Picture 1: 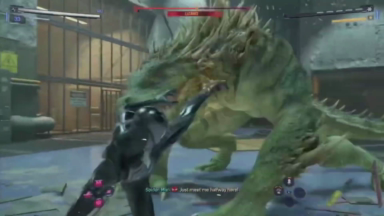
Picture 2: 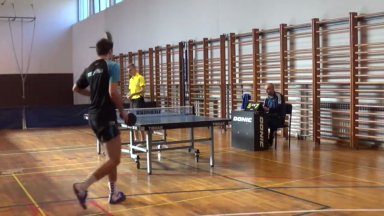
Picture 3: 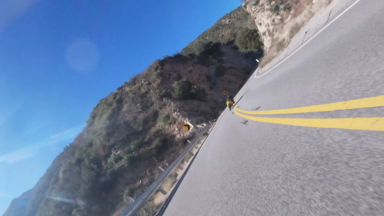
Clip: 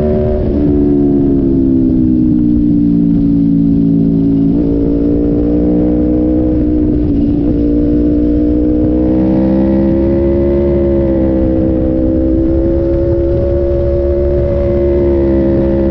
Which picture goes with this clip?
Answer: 3